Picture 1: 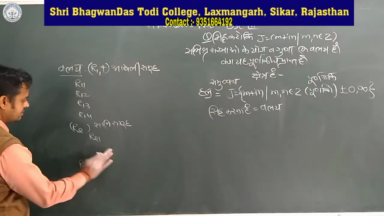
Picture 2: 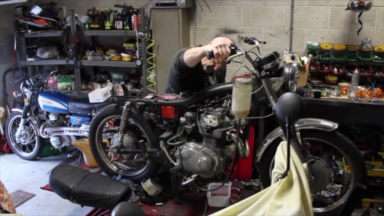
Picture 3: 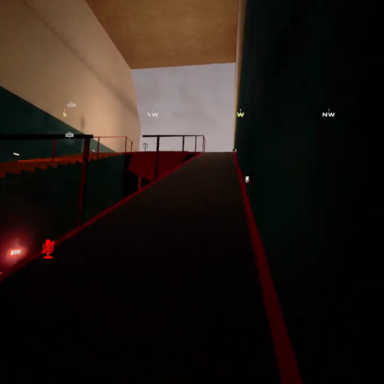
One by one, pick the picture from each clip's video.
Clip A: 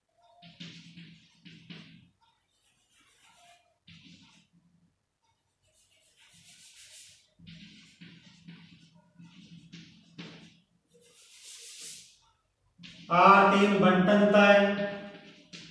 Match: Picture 1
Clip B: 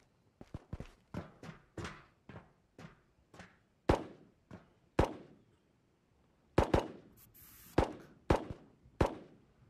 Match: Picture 3